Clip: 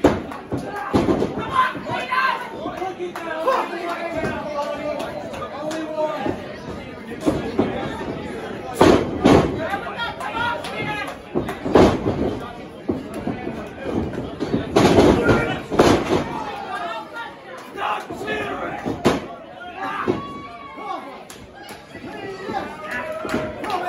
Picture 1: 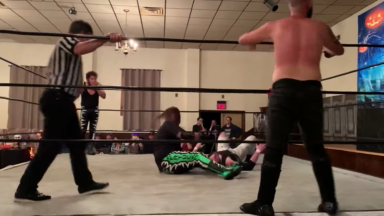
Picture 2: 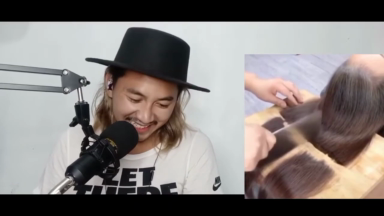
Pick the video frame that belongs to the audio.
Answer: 1